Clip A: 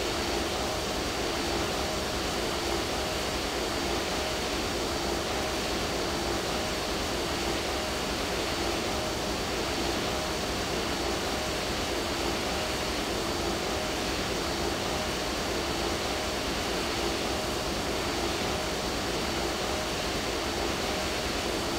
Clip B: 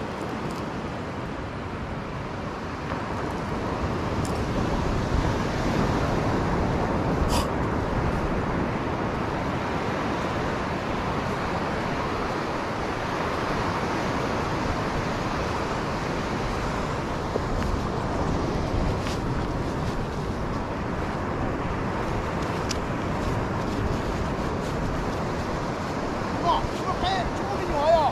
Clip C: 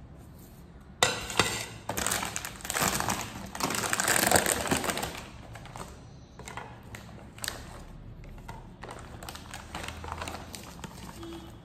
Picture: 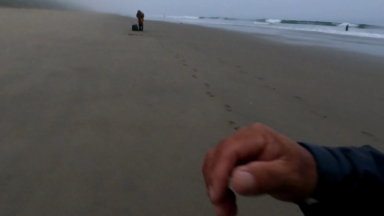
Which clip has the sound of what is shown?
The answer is B